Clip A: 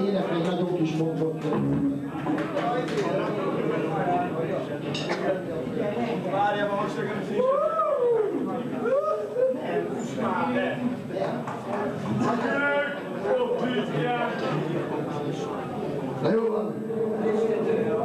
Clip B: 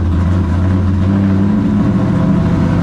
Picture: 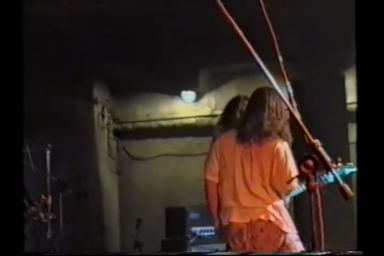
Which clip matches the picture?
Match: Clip A